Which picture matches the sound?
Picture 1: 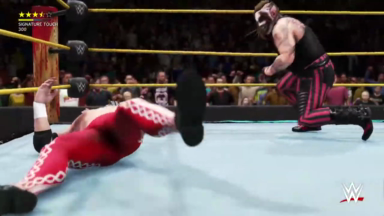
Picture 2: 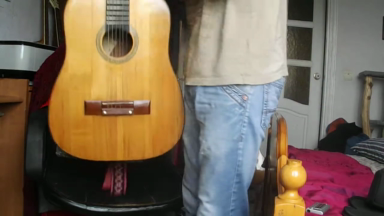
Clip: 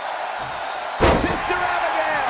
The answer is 1